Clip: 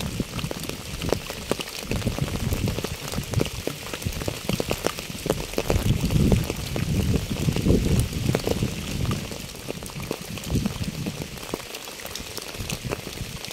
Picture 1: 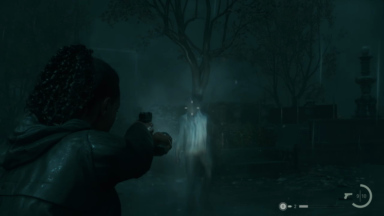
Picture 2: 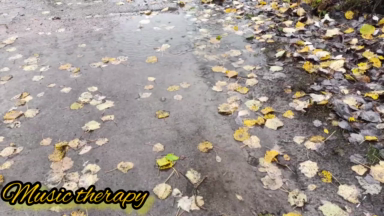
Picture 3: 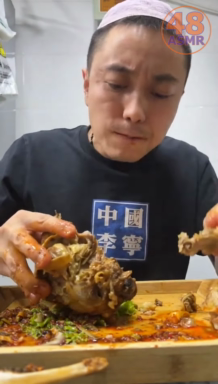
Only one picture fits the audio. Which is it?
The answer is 2